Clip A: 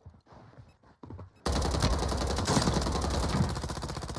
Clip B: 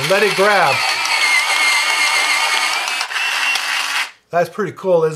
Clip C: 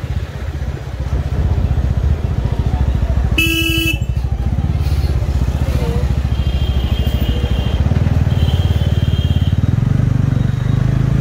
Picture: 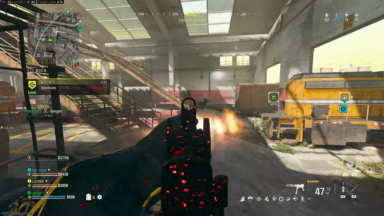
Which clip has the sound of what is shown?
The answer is A